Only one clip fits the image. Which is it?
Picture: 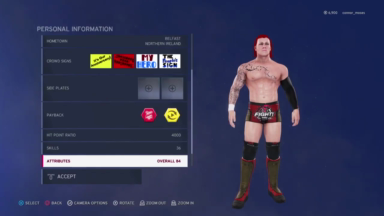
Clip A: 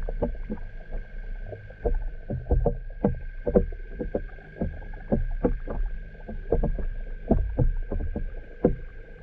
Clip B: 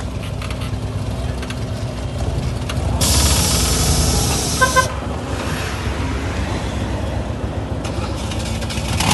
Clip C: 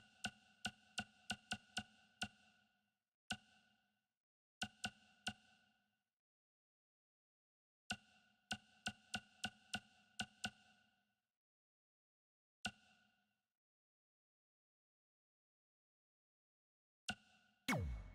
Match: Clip C